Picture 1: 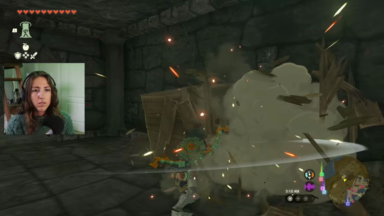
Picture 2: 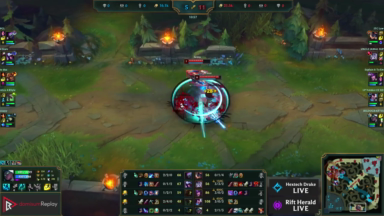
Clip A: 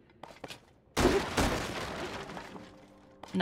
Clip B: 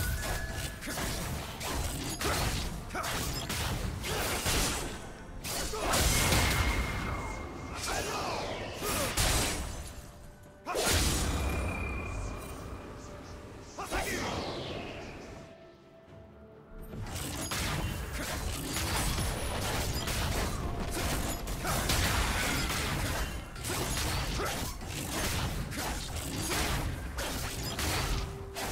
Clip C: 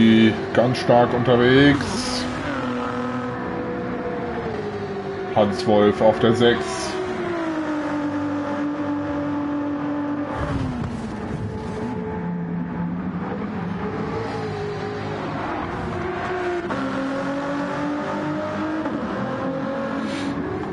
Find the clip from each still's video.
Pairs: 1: A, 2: B